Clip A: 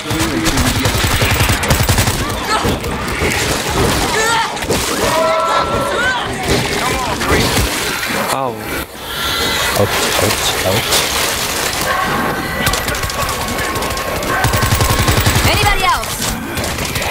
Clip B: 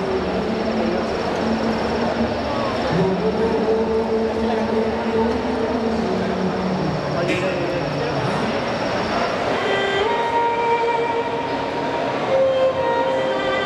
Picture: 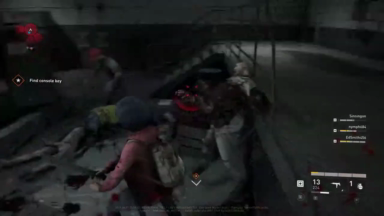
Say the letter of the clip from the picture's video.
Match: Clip A